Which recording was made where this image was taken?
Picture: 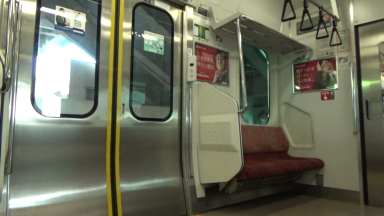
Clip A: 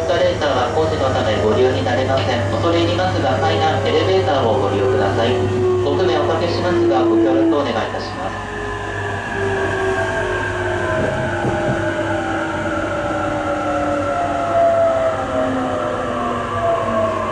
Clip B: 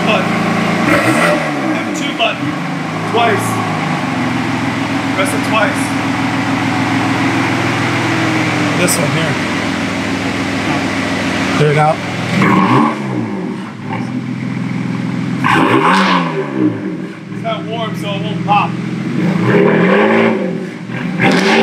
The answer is A